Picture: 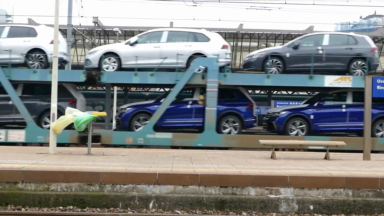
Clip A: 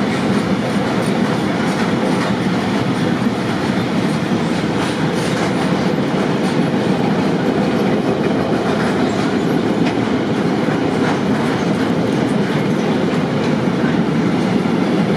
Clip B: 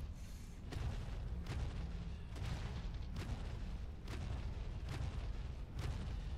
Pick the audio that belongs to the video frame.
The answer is A